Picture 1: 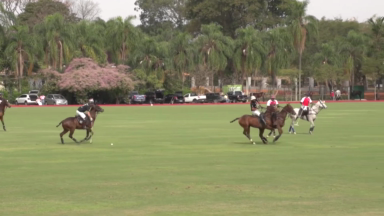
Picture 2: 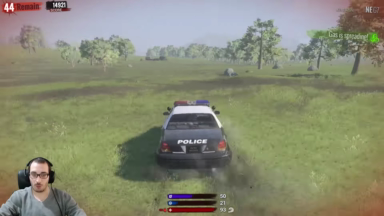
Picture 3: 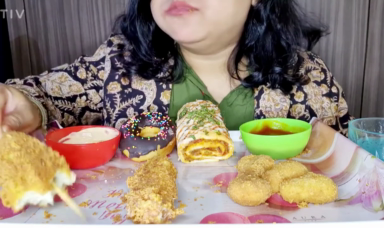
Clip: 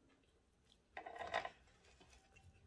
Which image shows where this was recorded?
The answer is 3